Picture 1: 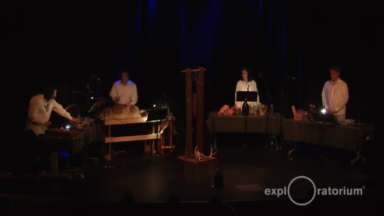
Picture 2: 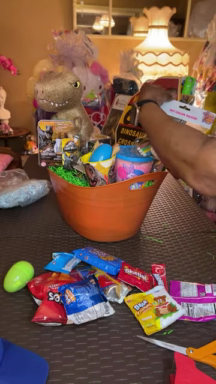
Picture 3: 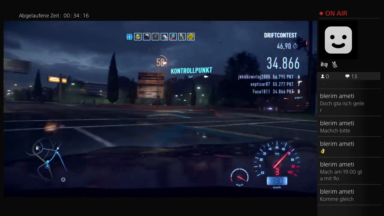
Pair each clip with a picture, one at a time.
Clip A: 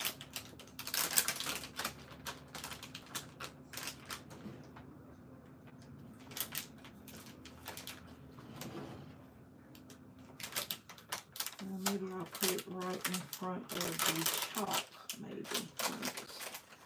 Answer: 2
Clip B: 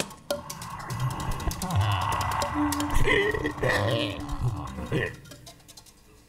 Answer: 1